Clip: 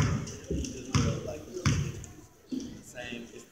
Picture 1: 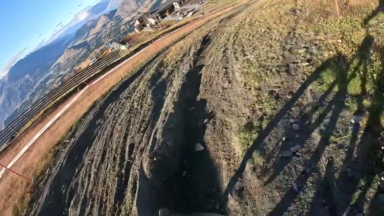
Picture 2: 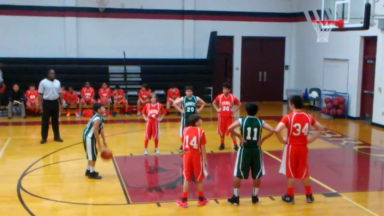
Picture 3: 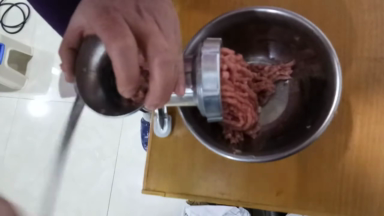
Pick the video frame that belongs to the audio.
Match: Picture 2